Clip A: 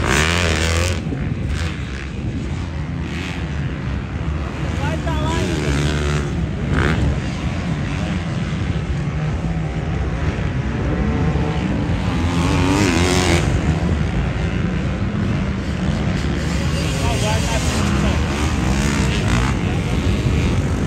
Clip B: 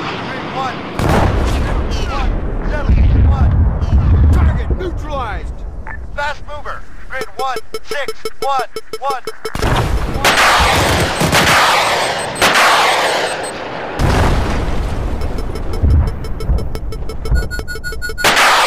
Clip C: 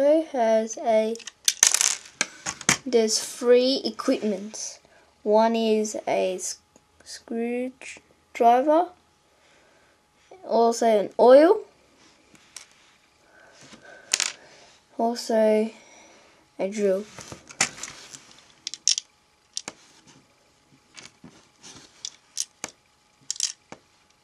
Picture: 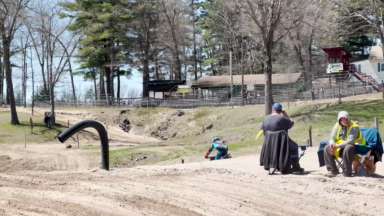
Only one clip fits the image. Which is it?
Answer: A